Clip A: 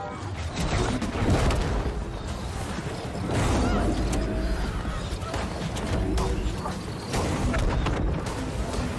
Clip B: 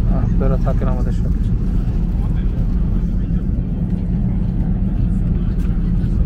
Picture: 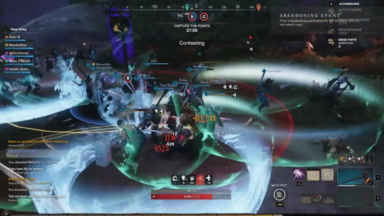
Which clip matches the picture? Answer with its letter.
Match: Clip A